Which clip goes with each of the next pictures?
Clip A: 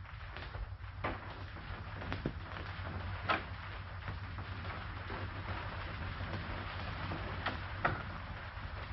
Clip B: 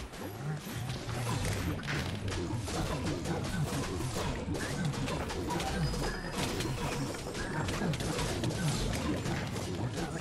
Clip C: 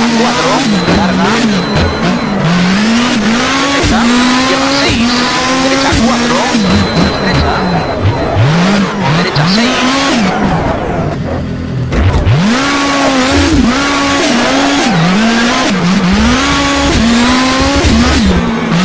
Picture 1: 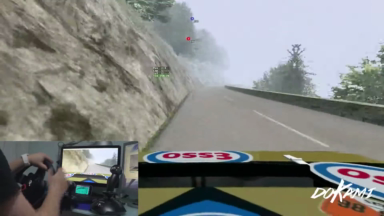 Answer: C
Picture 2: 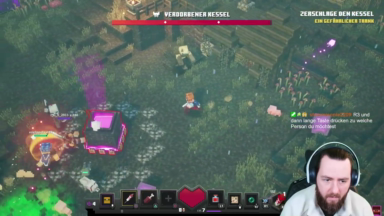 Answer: B